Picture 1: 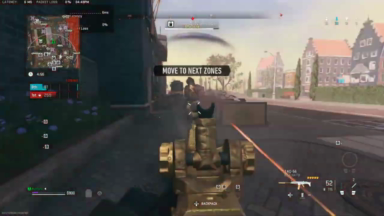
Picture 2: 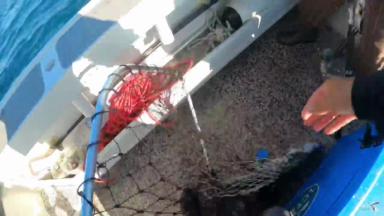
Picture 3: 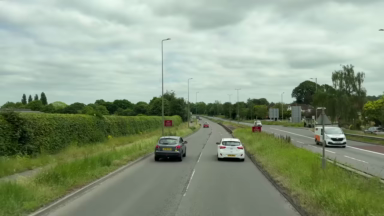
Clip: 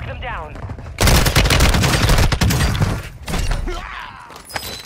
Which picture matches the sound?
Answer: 1